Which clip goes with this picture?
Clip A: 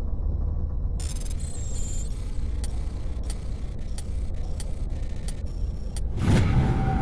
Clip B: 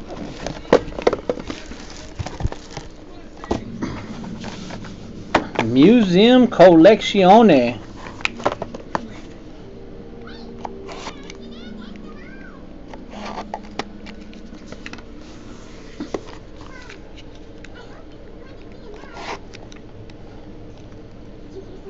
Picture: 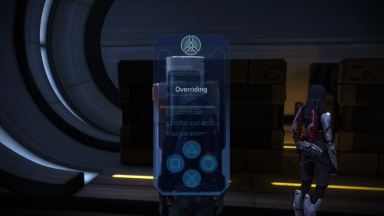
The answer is A